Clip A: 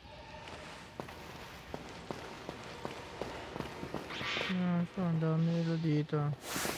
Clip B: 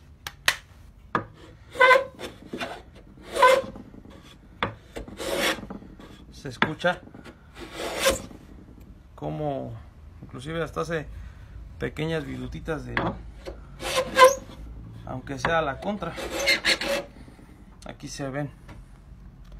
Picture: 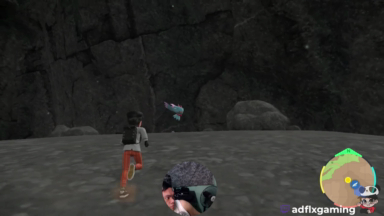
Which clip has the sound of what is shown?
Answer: A